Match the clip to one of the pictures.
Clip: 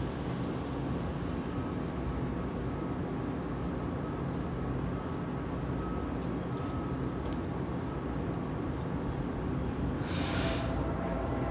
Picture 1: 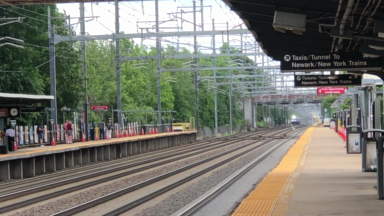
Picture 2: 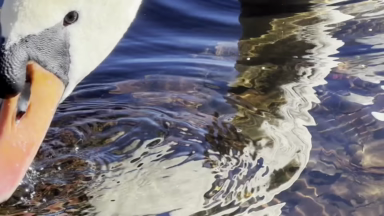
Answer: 1